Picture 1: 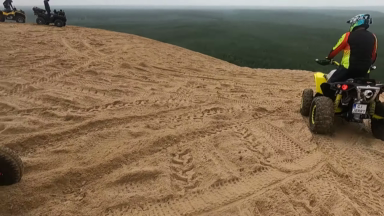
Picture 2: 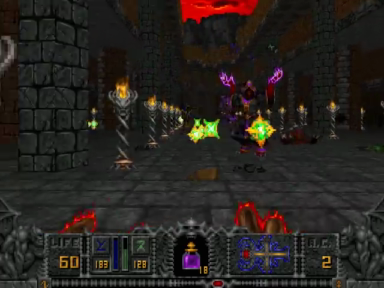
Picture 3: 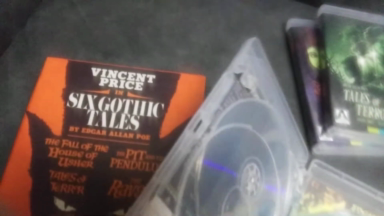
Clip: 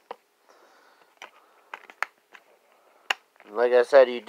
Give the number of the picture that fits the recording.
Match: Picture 3